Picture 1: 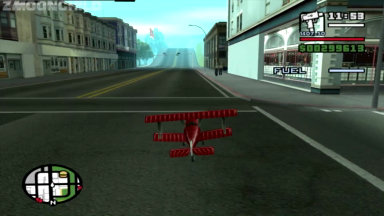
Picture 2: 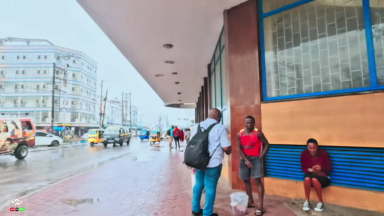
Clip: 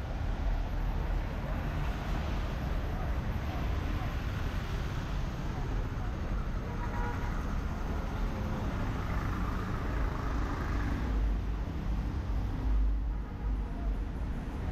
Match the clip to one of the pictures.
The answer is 2